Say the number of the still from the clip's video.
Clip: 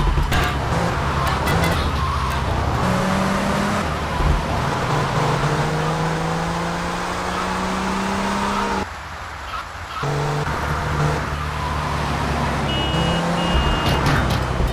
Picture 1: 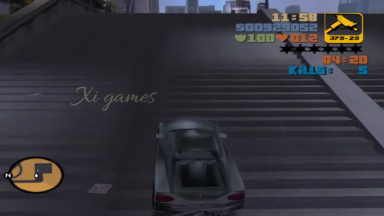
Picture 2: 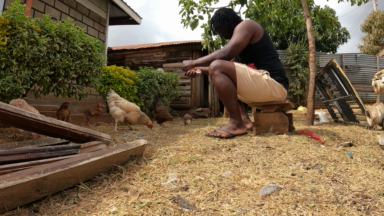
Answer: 1